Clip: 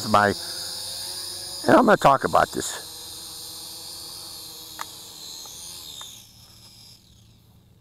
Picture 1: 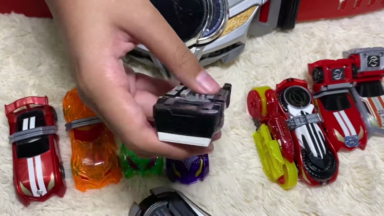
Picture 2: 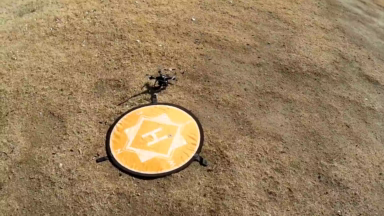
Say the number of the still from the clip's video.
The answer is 2